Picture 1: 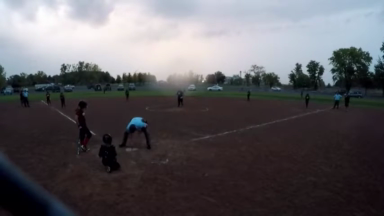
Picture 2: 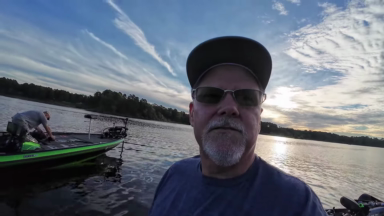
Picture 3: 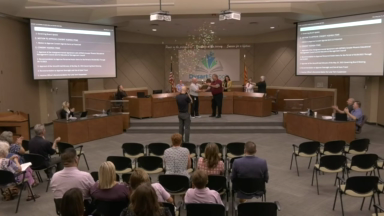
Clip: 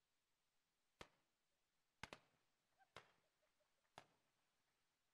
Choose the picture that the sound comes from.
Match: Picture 3